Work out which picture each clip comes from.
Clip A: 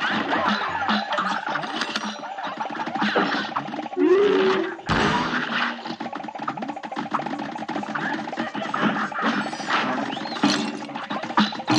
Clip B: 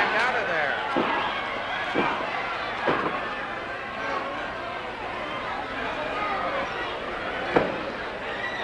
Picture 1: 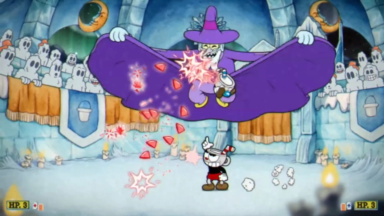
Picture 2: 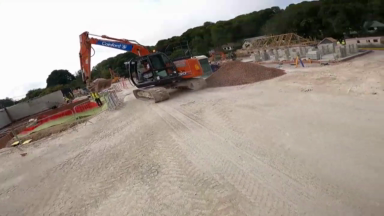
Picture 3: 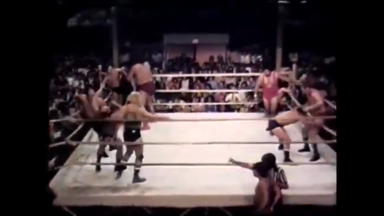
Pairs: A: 1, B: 3